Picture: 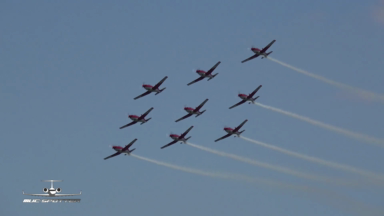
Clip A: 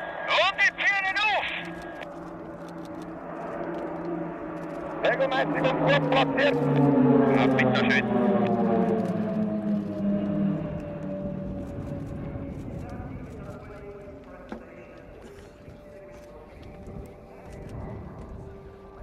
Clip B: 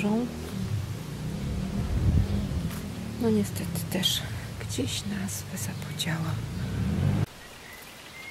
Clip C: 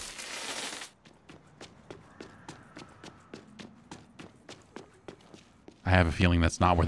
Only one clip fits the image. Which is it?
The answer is A